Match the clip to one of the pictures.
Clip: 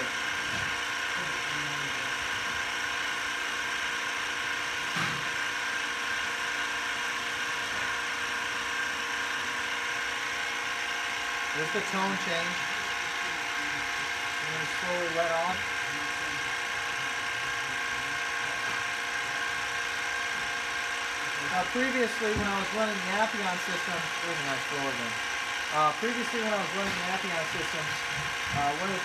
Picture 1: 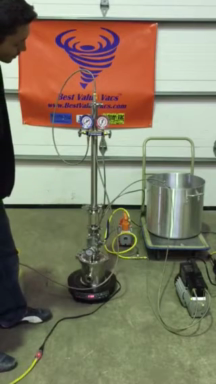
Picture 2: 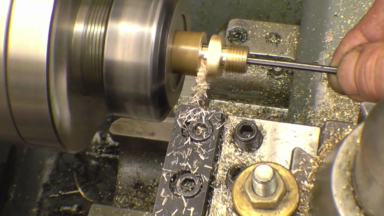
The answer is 1